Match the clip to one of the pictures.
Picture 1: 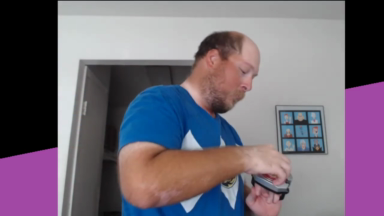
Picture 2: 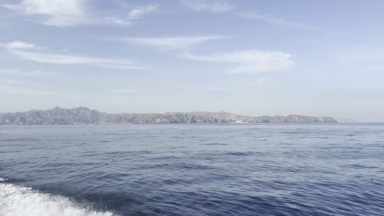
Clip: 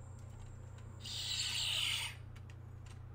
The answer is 1